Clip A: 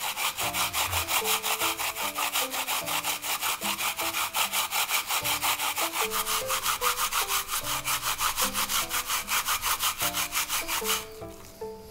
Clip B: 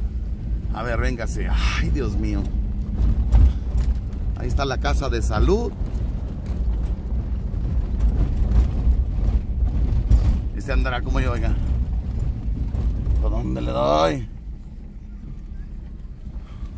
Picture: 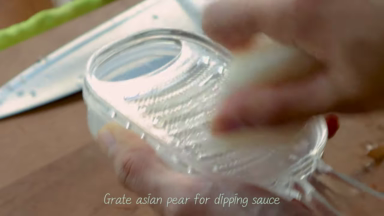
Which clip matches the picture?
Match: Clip A